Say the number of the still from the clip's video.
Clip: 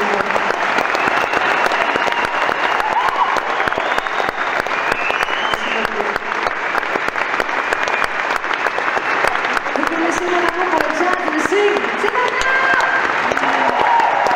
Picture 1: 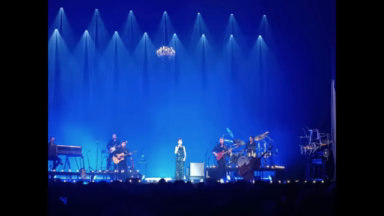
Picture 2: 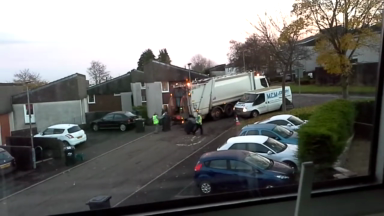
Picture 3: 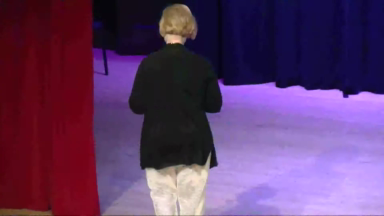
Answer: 1